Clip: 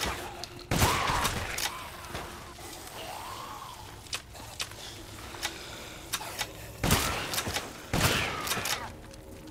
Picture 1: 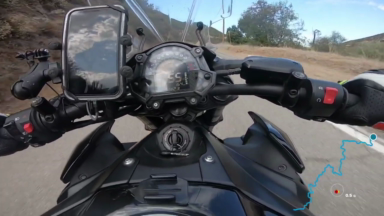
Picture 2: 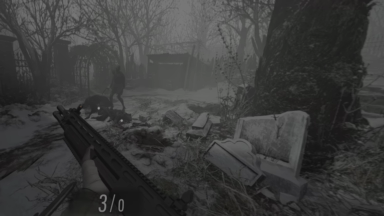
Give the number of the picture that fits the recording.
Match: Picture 2